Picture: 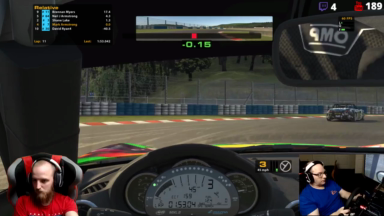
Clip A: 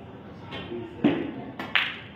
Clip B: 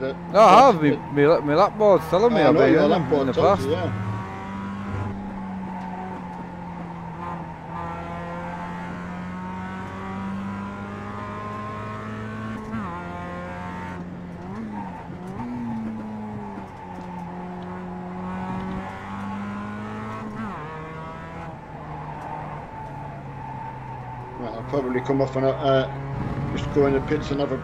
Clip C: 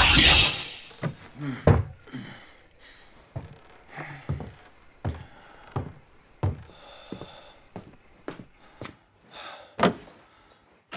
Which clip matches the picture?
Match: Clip B